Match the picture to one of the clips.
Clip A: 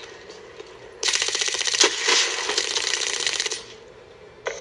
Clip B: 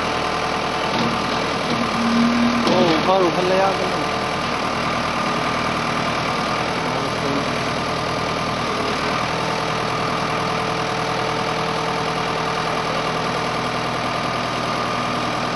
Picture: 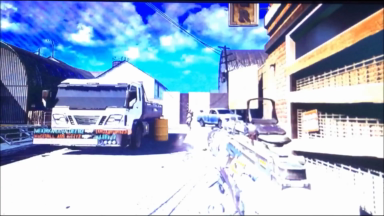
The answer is A